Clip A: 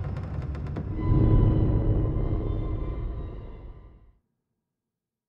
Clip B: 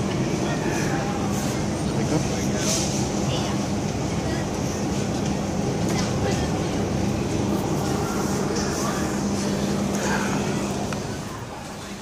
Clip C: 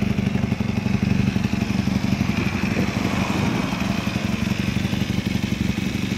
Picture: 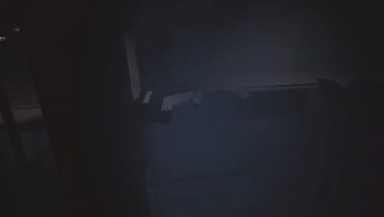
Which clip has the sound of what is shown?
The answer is A